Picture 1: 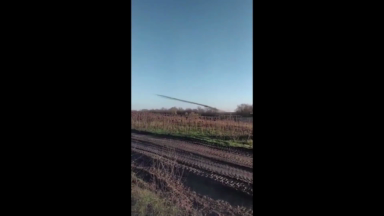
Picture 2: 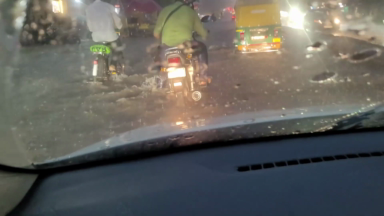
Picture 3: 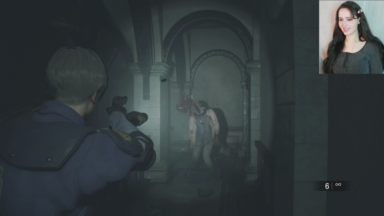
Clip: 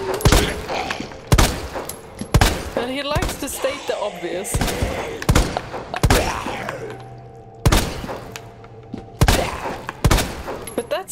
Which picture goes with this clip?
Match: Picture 3